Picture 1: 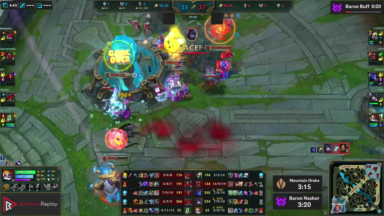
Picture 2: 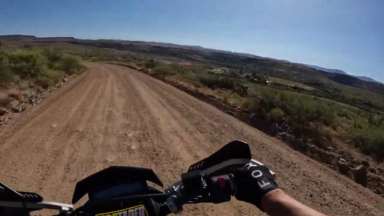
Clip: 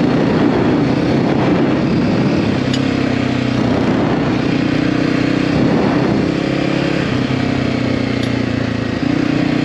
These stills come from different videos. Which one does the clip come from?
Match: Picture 2